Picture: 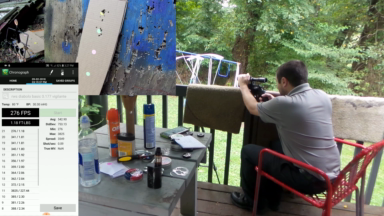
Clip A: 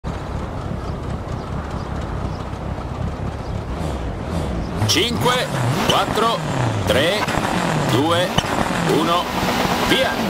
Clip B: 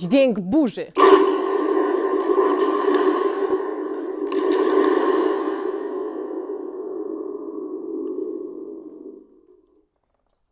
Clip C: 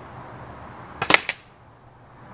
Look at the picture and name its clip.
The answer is C